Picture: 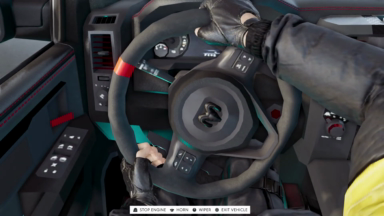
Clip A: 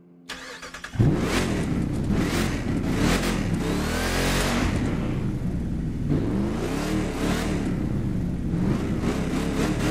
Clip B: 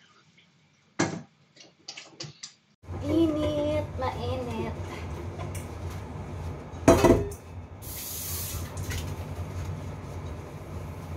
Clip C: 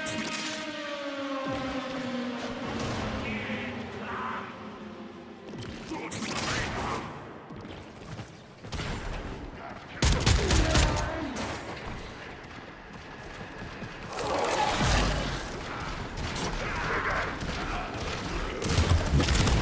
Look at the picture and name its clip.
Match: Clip A